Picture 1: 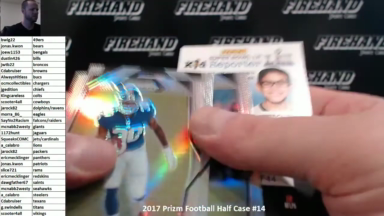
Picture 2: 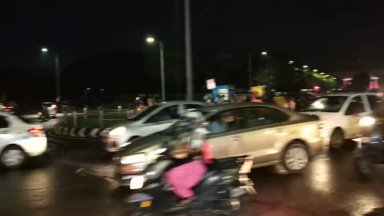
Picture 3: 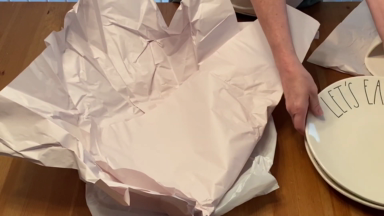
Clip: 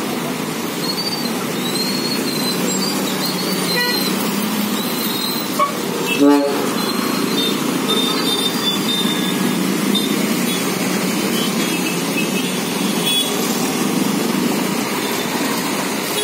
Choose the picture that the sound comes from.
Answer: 2